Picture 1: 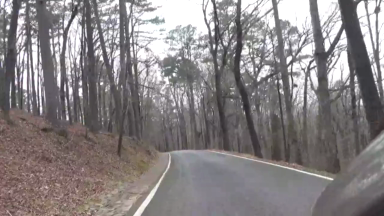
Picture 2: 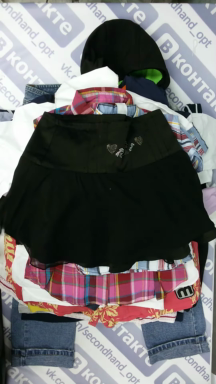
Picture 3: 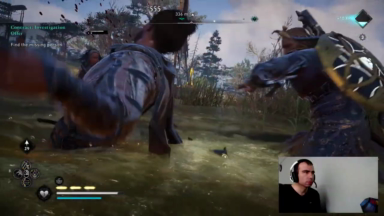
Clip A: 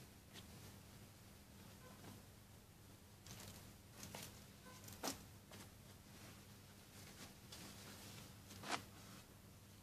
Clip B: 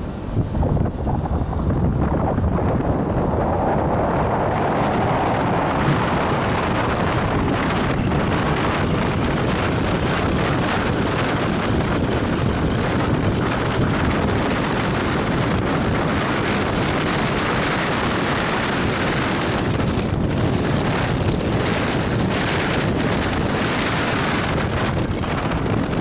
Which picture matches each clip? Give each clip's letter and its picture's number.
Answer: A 2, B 1